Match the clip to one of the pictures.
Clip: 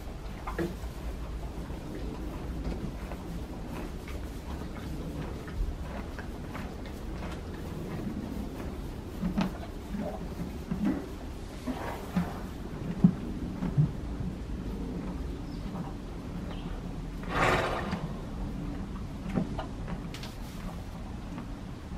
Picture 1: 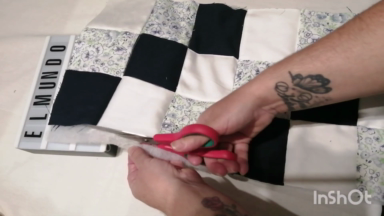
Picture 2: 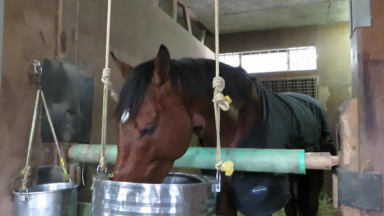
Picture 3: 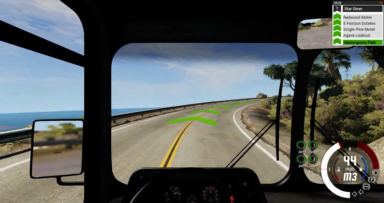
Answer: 2